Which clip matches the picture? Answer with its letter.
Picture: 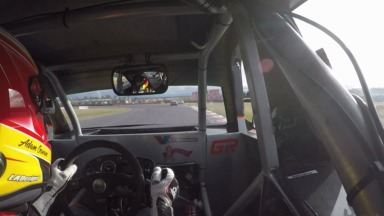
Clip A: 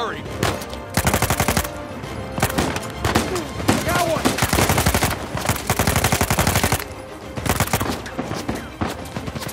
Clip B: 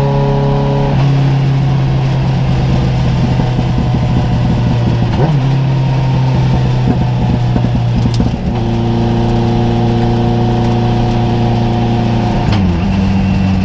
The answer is B